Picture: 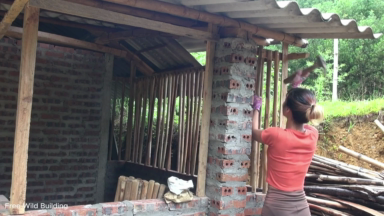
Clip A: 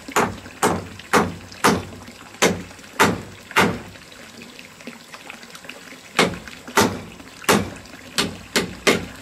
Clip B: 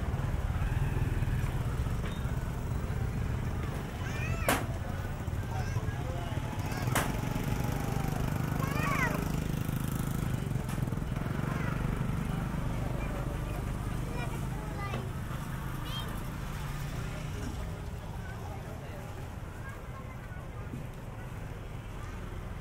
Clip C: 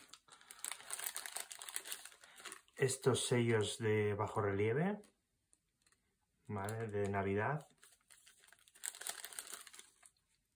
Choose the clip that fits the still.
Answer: A